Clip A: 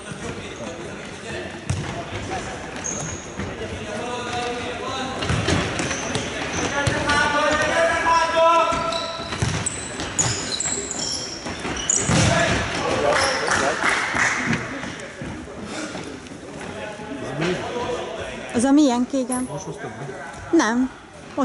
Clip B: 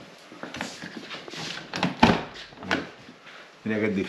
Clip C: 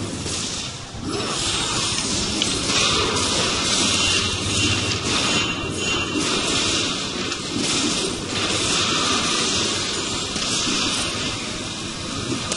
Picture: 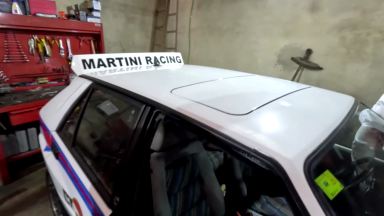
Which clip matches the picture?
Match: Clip B